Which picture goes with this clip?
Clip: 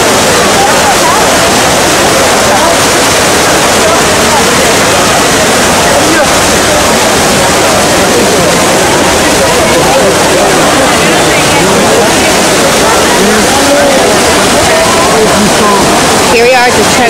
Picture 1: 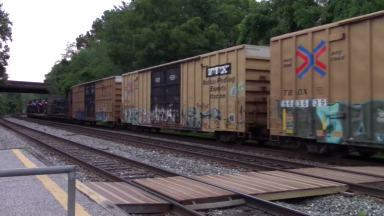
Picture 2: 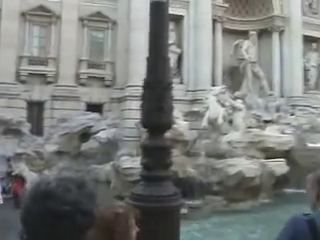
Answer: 2